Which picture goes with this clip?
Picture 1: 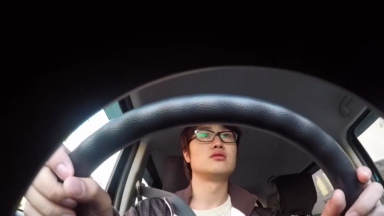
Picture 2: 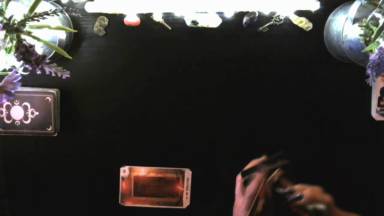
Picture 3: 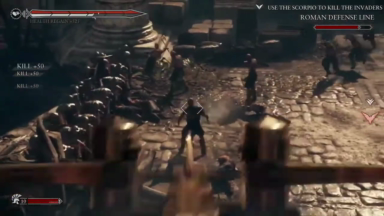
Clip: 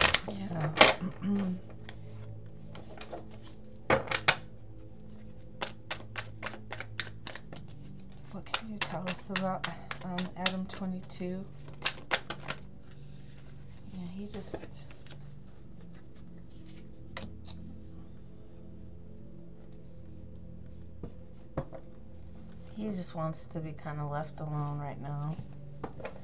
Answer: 2